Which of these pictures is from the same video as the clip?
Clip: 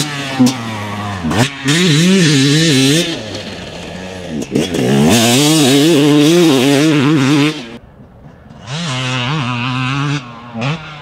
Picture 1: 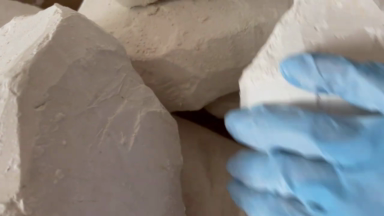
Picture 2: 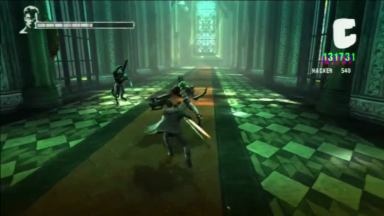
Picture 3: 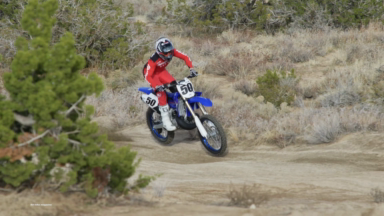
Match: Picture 3